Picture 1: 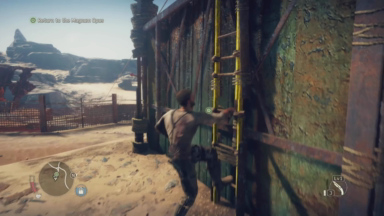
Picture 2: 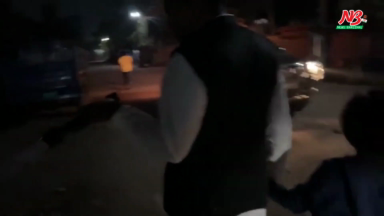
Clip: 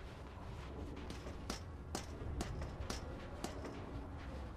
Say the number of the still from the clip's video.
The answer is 1